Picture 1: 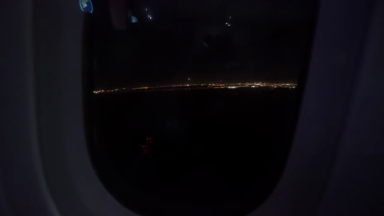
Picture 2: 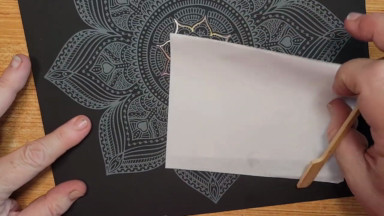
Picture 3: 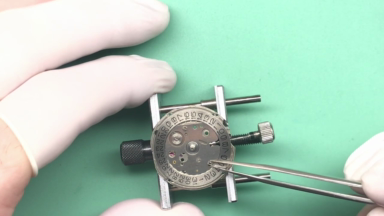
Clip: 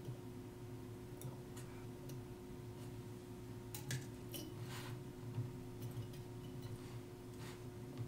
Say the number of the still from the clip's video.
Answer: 3